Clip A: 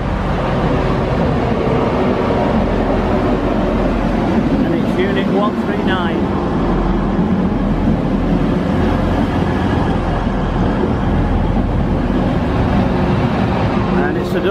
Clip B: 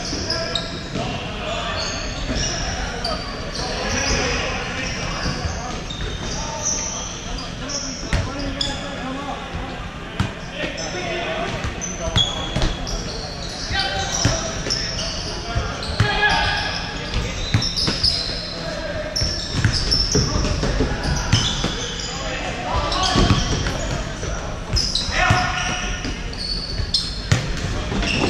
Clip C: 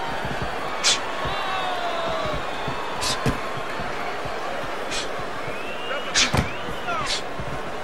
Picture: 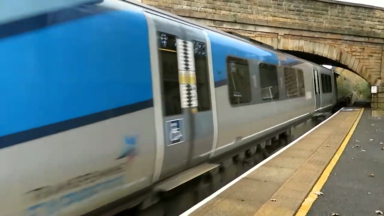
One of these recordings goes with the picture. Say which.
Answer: A